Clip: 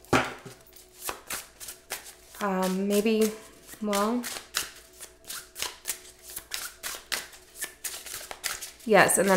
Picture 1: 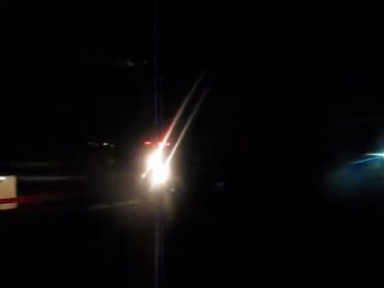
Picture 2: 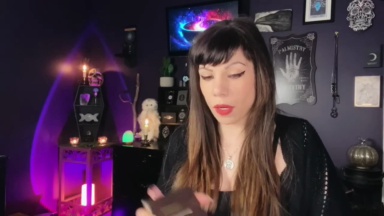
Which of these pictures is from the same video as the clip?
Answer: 2